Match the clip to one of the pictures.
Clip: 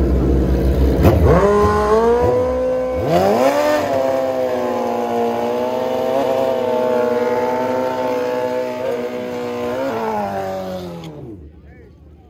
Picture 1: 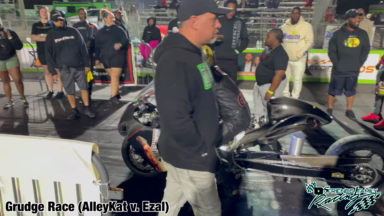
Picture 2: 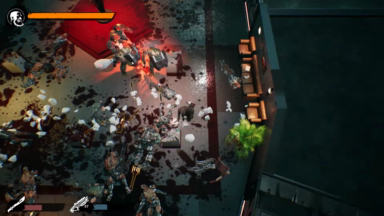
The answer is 1